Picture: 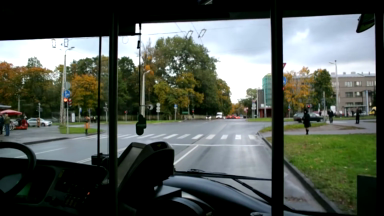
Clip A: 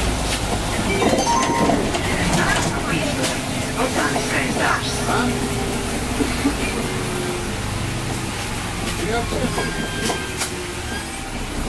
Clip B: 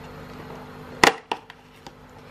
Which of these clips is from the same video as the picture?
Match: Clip A